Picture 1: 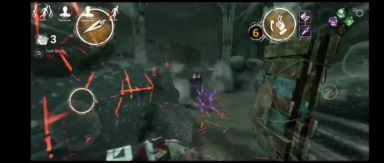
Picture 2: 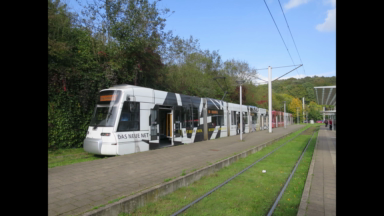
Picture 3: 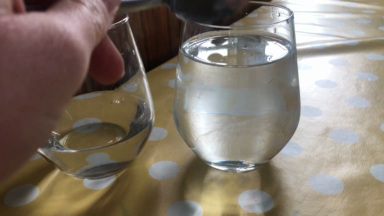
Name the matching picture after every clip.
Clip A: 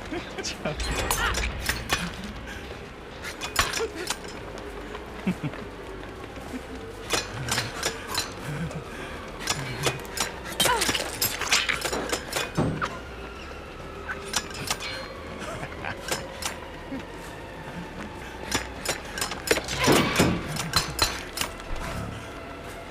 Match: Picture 1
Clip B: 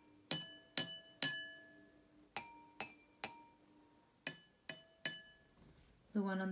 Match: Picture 3